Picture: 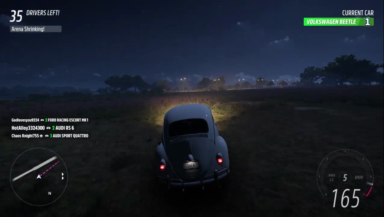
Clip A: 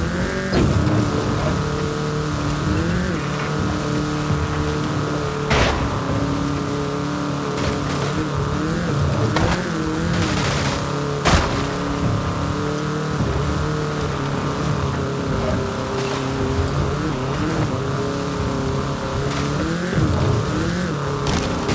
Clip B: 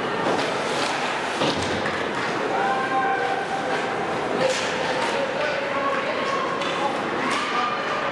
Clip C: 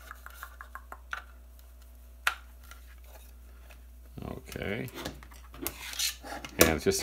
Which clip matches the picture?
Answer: A